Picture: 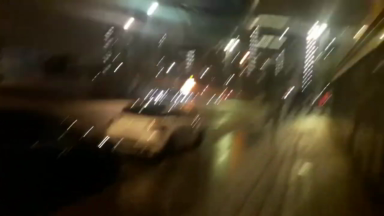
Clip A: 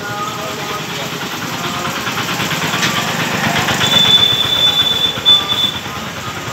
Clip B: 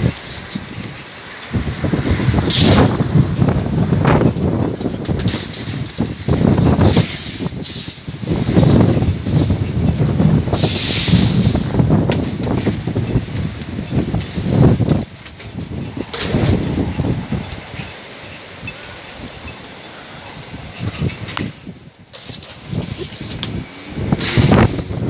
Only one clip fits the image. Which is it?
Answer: B